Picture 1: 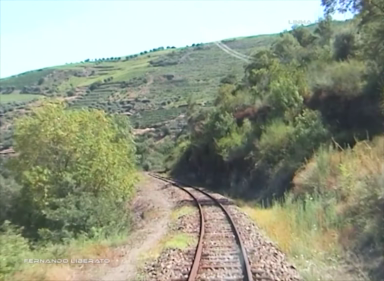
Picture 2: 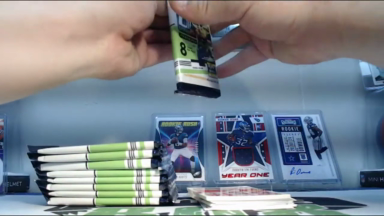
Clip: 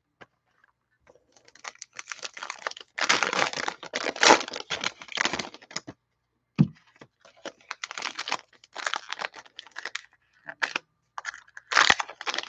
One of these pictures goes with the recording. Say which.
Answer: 2